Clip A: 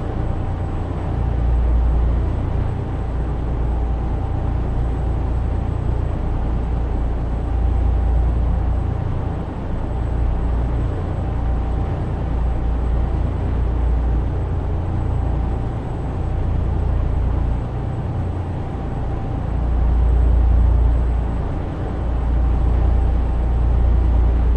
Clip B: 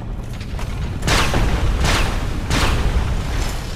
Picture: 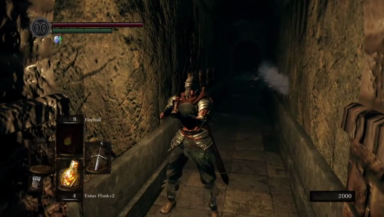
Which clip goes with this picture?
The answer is B